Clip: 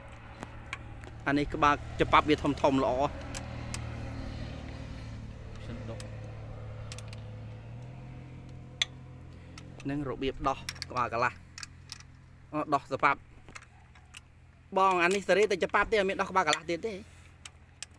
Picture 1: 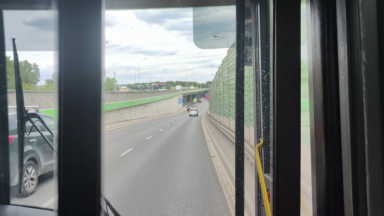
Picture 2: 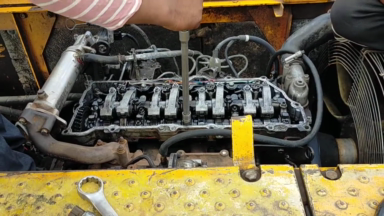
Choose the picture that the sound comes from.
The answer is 2